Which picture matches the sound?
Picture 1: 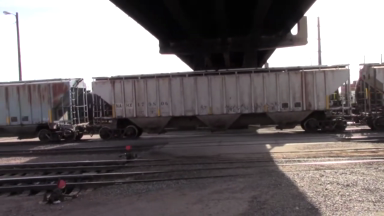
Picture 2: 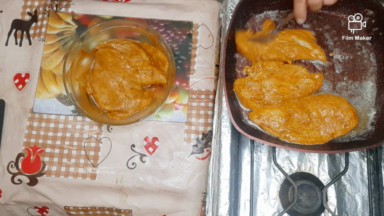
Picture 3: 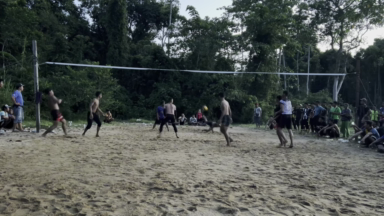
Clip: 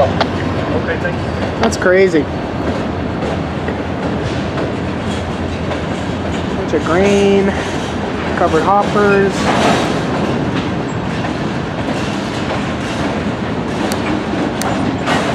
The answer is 1